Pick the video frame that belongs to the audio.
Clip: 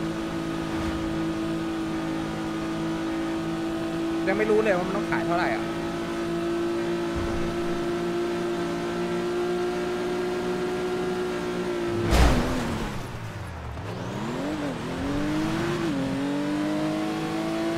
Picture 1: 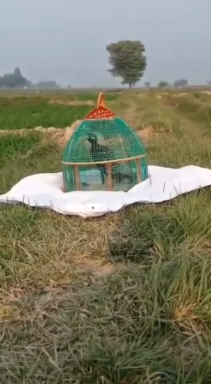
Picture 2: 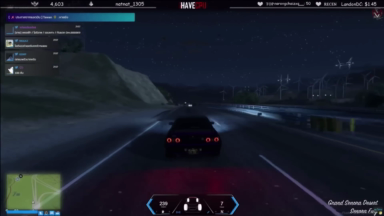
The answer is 2